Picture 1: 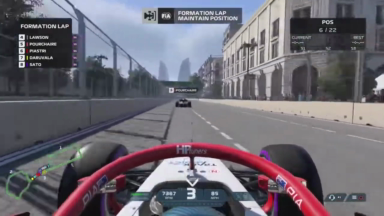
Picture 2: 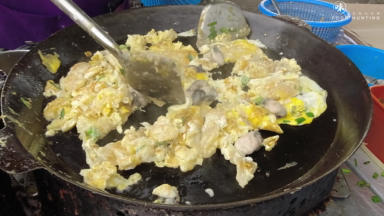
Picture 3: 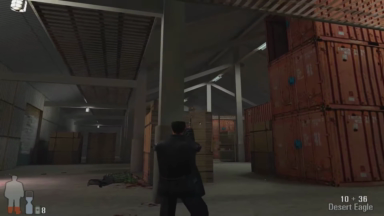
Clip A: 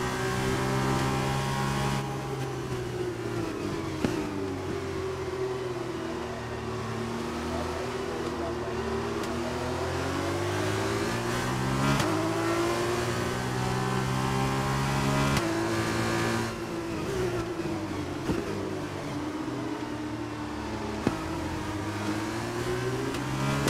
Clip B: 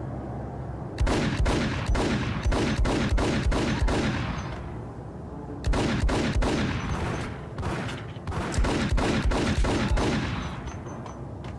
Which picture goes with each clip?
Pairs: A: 1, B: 3